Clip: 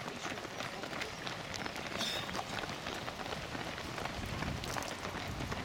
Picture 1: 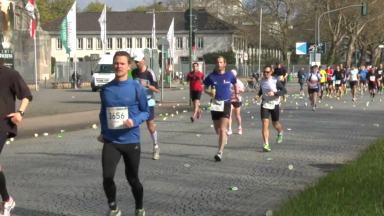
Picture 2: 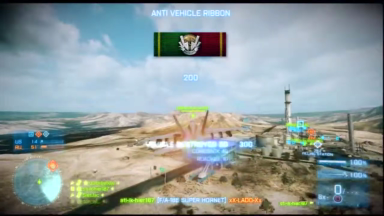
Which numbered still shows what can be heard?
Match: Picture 1